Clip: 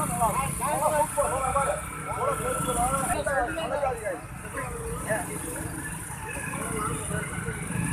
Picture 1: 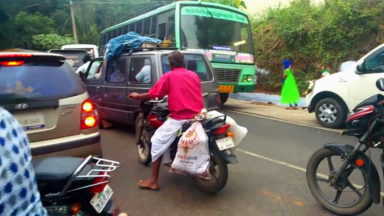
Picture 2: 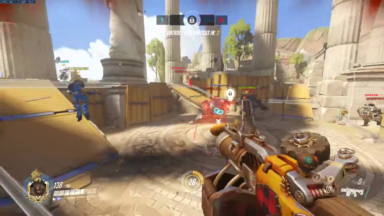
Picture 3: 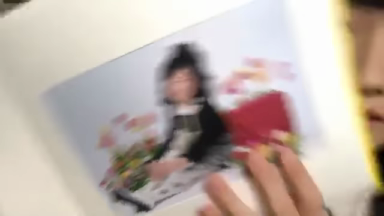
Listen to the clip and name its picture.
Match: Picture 1